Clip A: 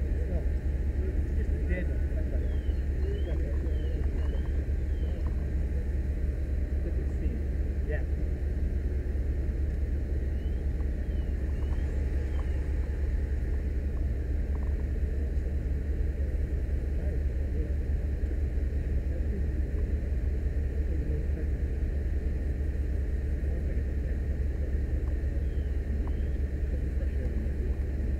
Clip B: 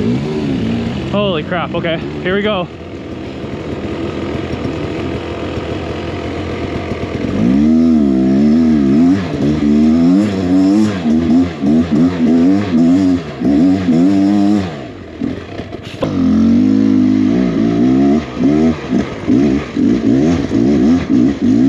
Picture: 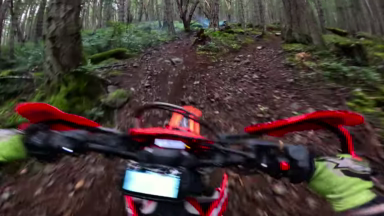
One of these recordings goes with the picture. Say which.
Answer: B